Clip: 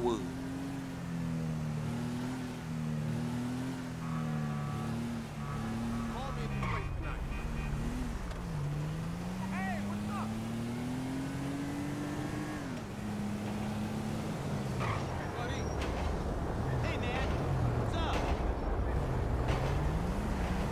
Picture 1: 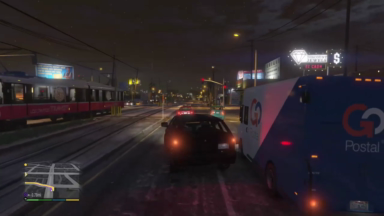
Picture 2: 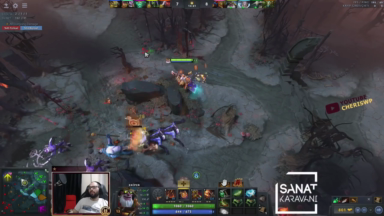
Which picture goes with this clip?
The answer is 1